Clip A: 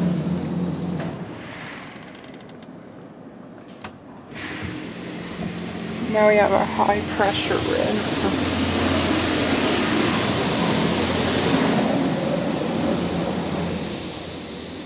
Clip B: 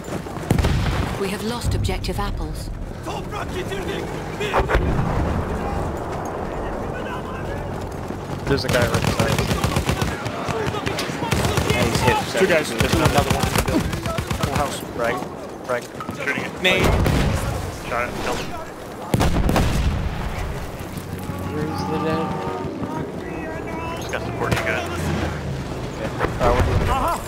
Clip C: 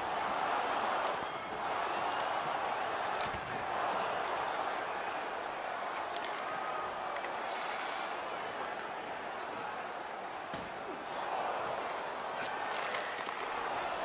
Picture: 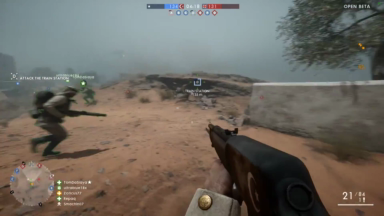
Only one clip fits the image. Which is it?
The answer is B